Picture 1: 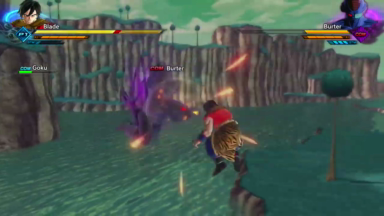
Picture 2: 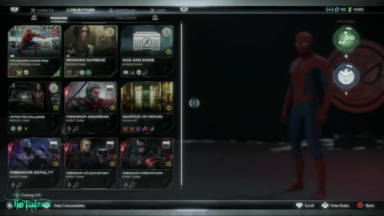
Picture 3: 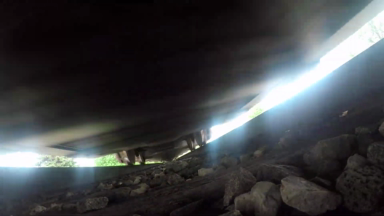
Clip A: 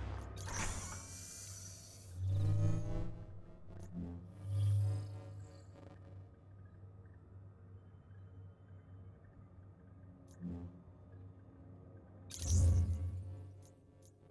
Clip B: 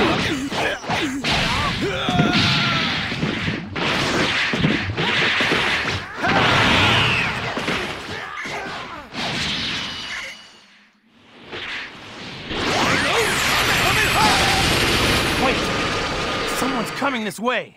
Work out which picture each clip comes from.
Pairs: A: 2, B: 1